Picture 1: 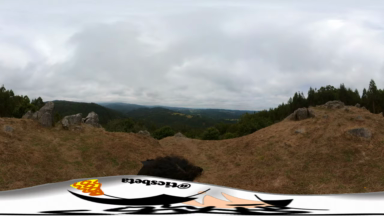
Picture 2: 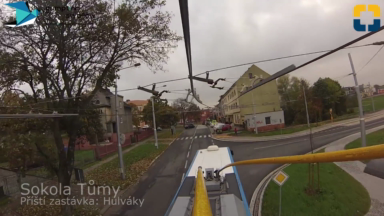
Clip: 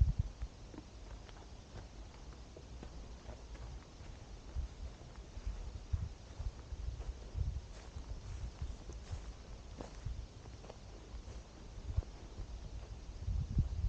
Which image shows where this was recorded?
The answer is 1